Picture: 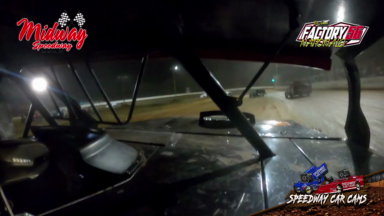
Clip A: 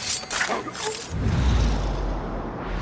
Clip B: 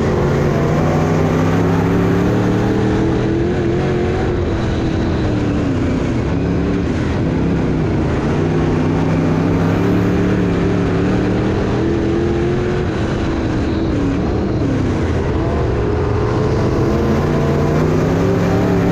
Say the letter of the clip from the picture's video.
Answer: B